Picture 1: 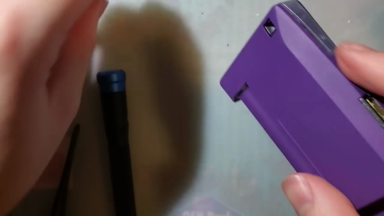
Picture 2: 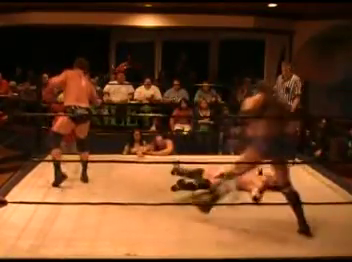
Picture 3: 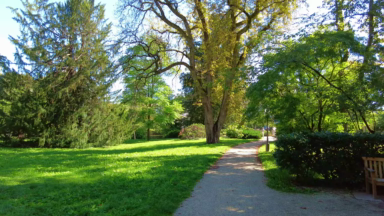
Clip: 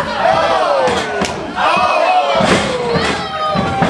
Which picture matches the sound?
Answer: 2